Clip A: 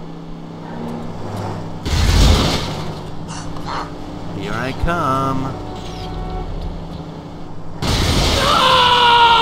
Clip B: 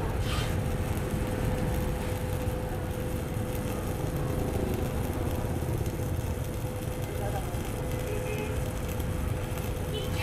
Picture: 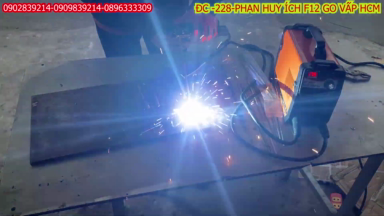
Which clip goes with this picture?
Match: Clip B